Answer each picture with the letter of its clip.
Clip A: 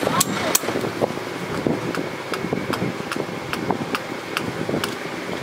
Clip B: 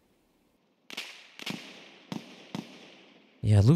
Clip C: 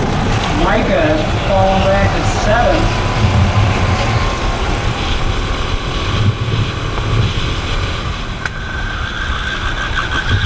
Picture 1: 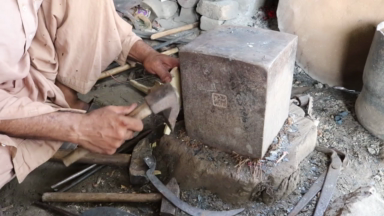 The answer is A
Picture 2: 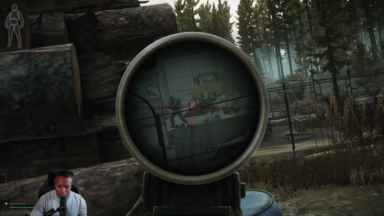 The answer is B